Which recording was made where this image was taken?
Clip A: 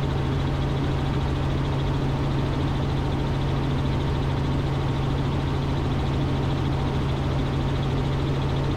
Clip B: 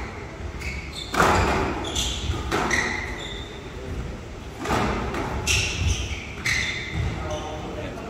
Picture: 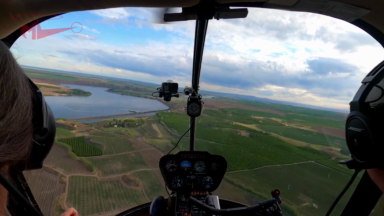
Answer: A